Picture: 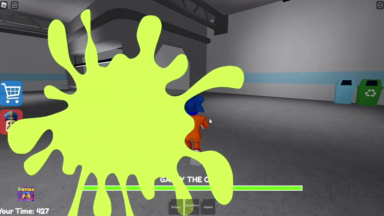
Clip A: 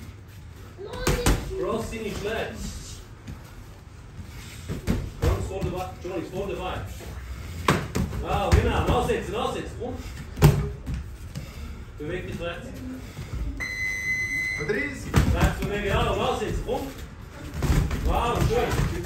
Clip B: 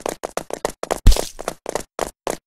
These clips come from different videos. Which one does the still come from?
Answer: B